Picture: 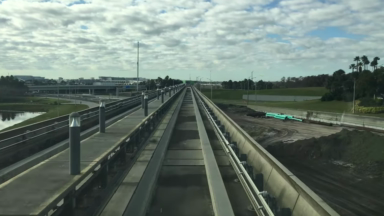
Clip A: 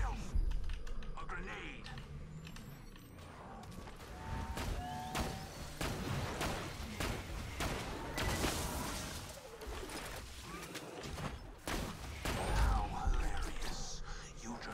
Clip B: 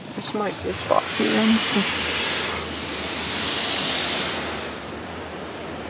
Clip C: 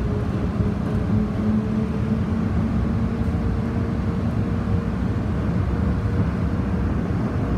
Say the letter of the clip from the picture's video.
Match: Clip C